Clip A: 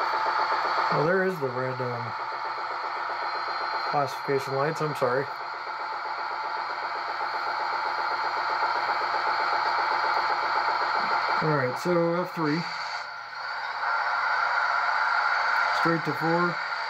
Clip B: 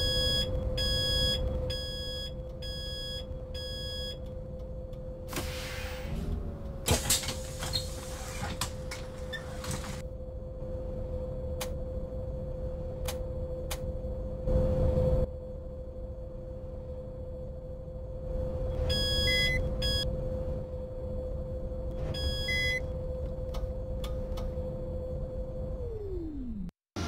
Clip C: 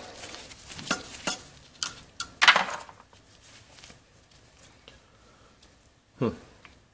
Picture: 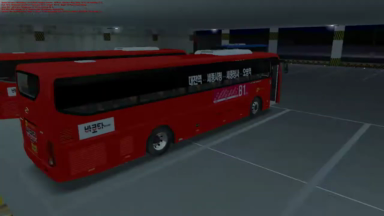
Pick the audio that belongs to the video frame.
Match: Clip B